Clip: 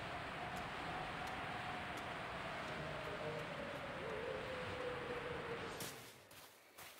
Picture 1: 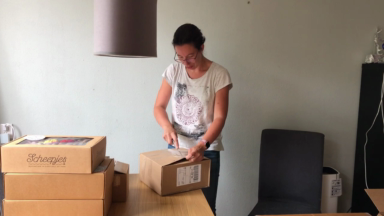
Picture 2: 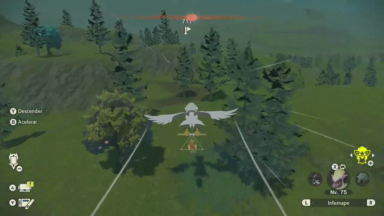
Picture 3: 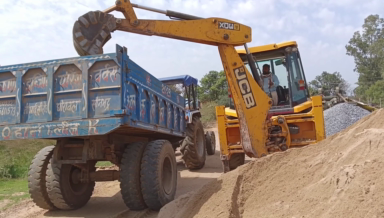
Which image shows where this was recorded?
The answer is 2